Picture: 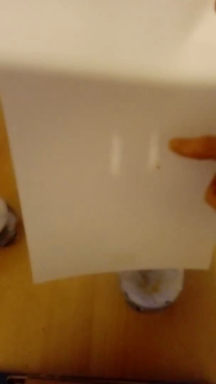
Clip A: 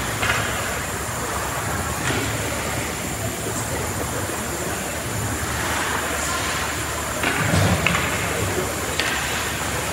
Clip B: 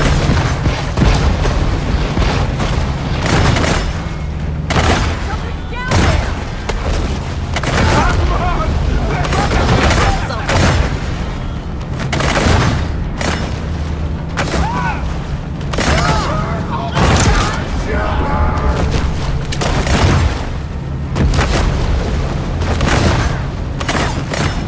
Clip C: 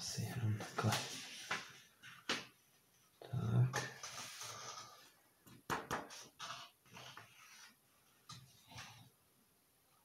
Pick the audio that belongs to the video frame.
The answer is C